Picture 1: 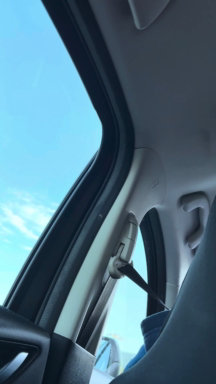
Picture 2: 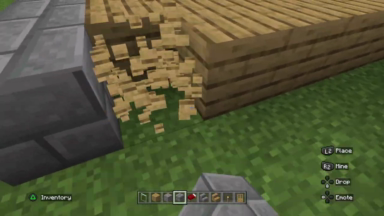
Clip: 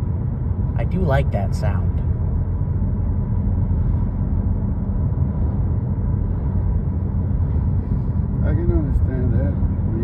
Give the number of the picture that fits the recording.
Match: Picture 1